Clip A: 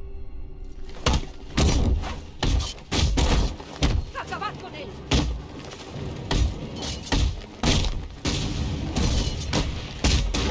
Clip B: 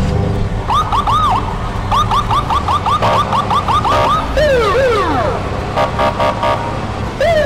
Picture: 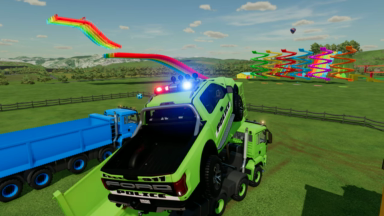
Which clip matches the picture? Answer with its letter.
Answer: B